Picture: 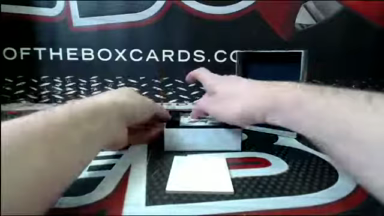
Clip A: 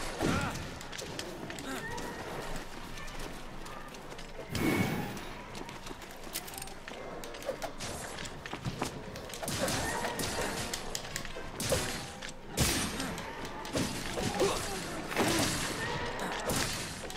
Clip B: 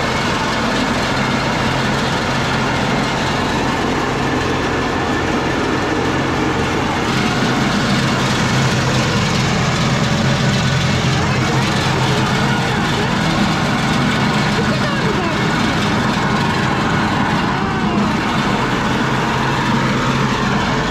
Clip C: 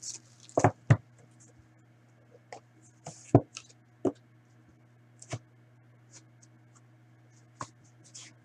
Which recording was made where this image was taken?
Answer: C